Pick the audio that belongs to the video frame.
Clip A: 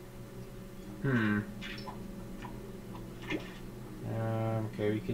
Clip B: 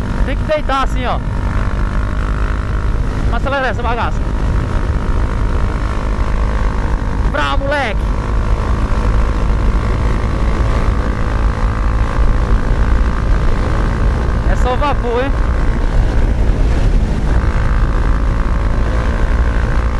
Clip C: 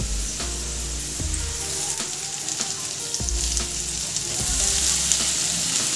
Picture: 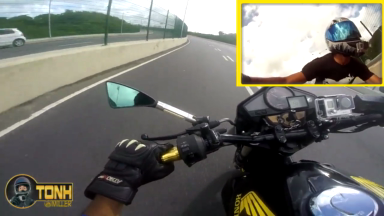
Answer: B